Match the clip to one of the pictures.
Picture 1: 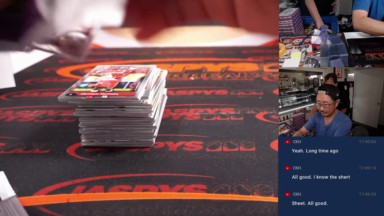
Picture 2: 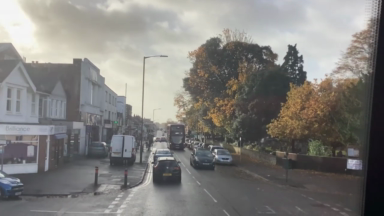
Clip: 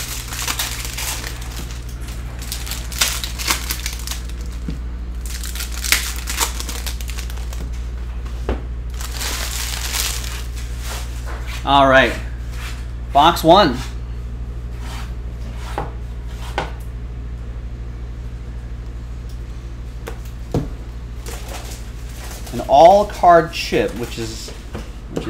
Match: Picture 1